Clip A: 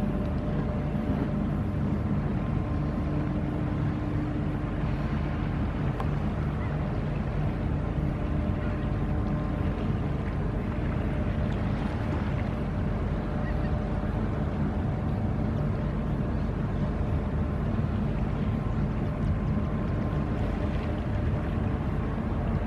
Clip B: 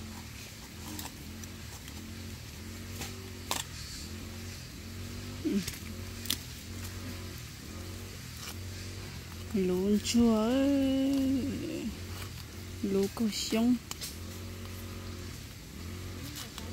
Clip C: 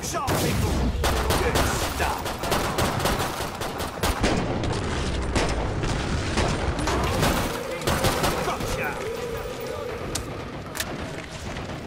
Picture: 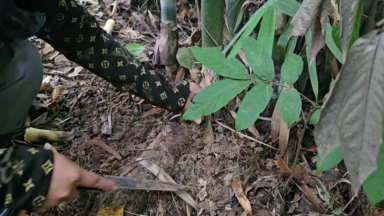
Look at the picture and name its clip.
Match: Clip B